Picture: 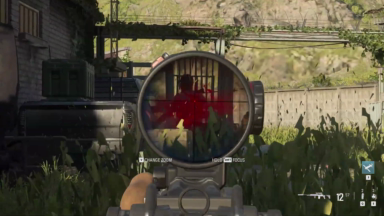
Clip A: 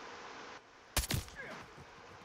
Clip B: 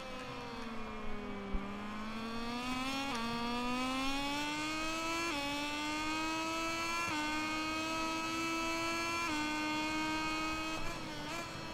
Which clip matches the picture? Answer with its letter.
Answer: A